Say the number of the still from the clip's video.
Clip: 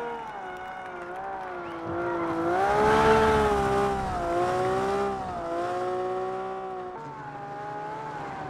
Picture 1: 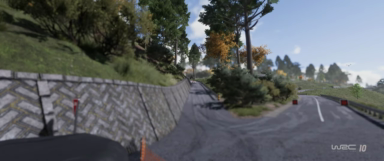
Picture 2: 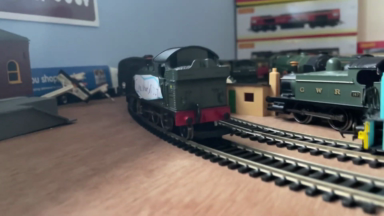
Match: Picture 1